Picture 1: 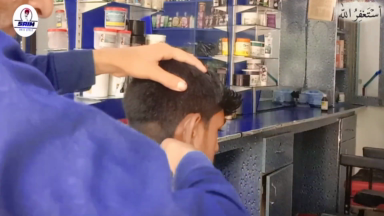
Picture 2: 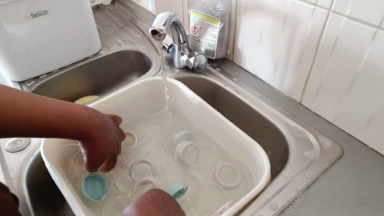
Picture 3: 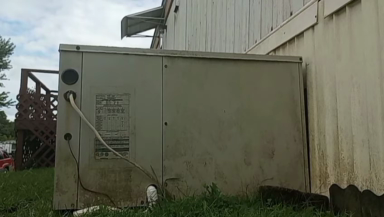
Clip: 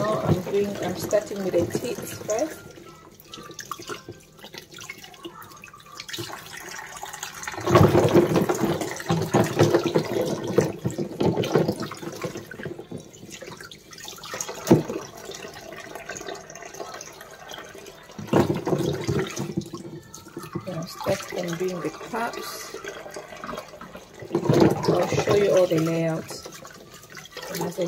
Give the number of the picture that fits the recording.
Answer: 2